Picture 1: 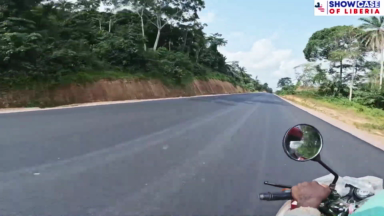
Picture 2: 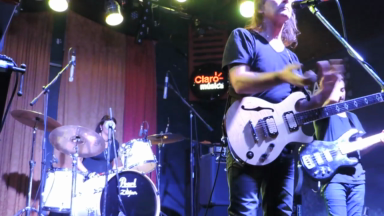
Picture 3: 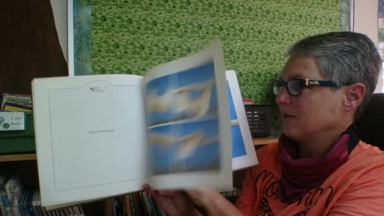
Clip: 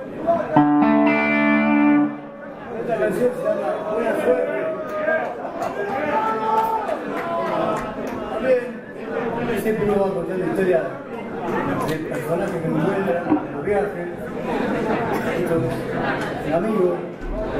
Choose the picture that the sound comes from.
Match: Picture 2